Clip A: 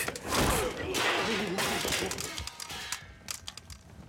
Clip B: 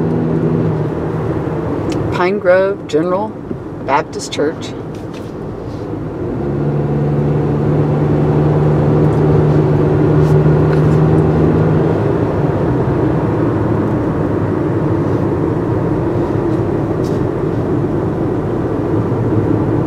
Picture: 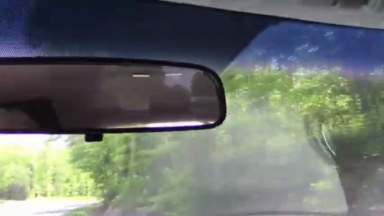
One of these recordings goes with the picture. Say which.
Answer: B